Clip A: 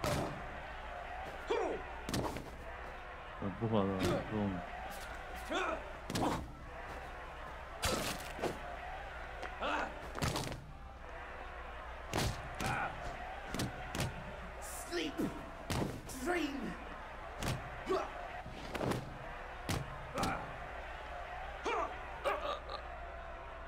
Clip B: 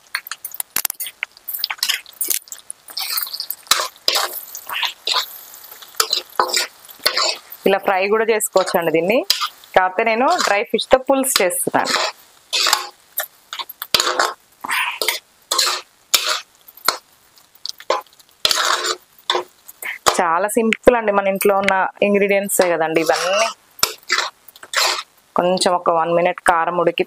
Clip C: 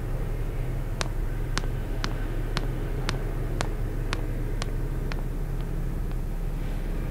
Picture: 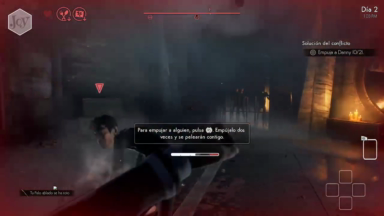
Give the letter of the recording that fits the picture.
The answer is A